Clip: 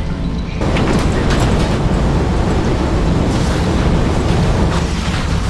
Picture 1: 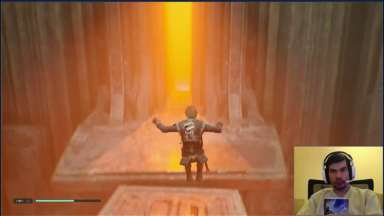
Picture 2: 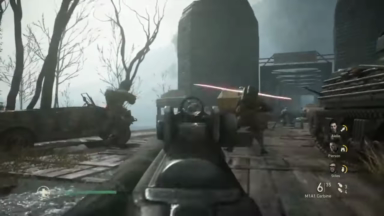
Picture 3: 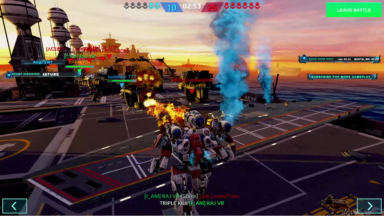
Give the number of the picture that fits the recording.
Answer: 3